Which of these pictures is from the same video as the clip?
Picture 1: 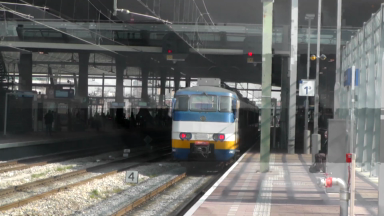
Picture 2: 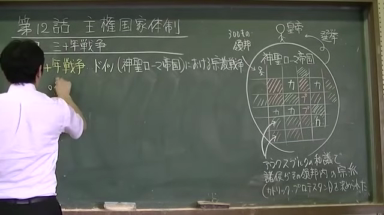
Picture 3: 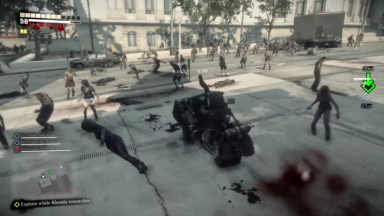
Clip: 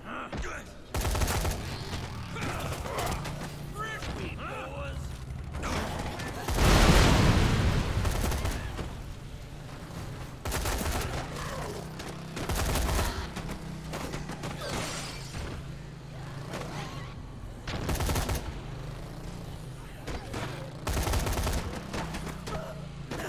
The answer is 3